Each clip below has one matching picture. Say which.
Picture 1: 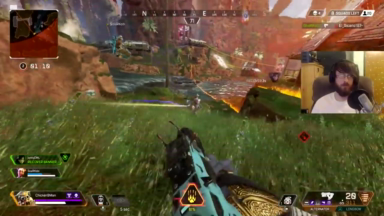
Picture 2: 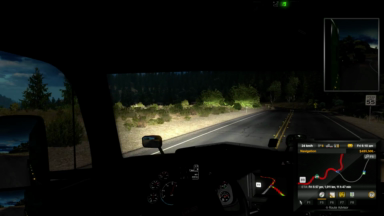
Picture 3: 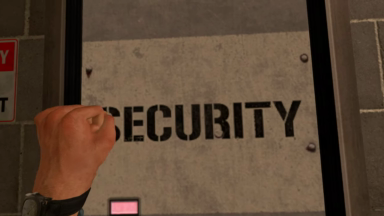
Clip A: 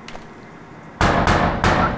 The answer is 3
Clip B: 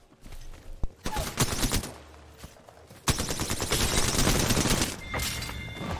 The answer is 1